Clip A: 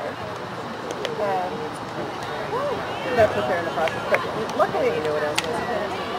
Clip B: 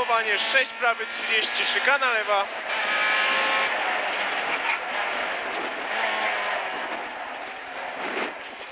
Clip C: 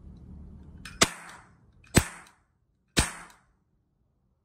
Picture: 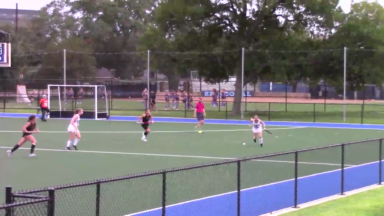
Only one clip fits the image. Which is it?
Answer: A